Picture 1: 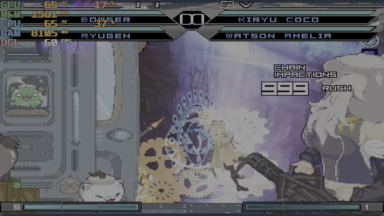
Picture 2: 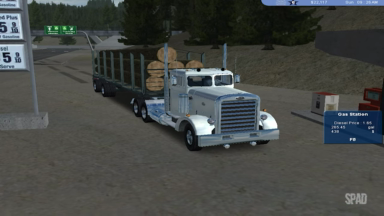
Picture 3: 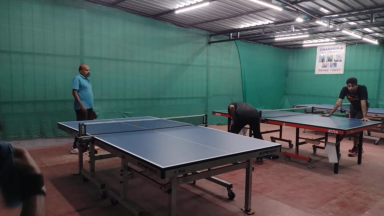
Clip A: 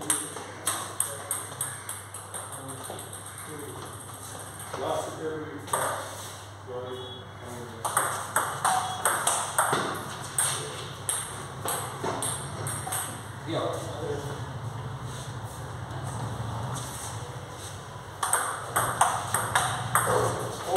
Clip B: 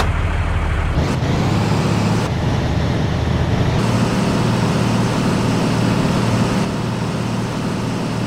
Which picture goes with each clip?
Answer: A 3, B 2